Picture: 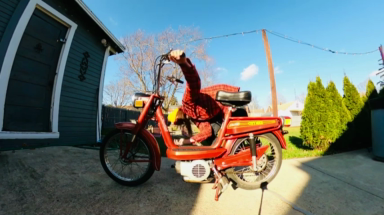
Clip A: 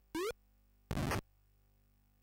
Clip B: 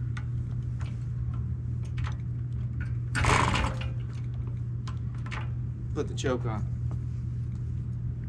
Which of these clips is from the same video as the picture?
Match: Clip B